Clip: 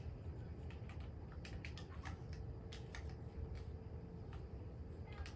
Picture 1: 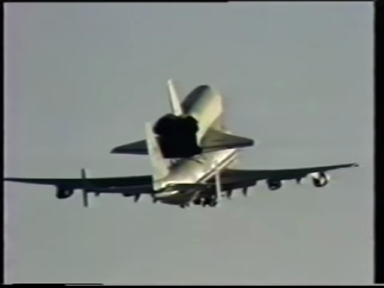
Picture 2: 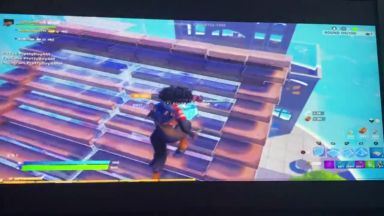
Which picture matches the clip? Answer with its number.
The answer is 2